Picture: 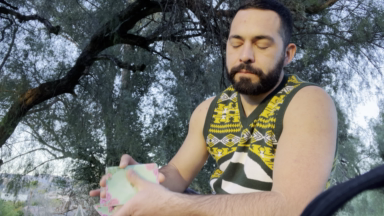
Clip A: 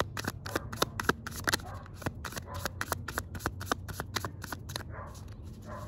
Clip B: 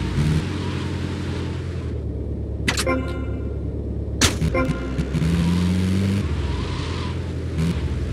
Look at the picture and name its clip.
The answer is A